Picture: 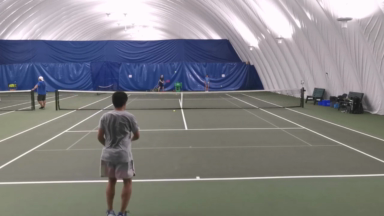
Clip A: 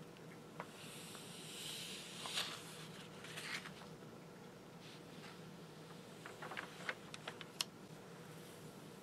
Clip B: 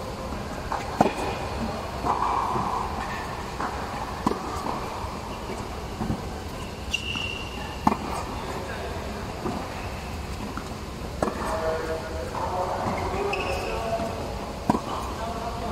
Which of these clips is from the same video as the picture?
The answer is B